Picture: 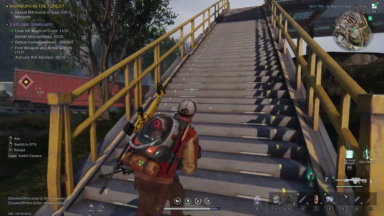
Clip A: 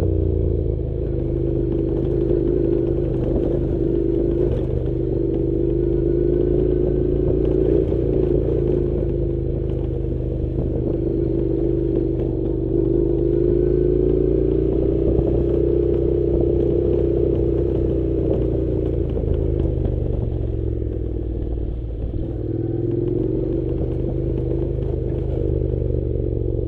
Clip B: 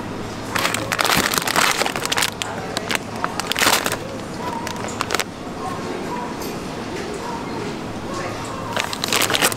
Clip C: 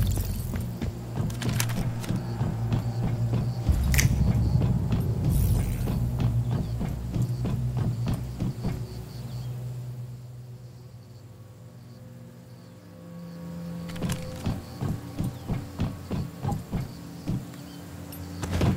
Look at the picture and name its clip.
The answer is C